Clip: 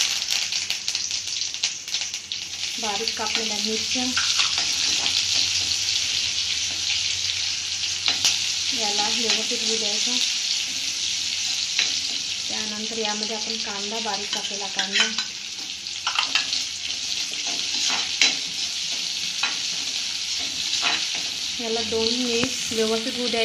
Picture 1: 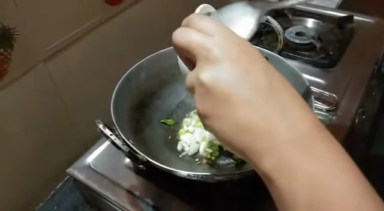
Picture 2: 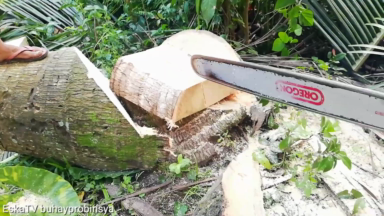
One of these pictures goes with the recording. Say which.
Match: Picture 1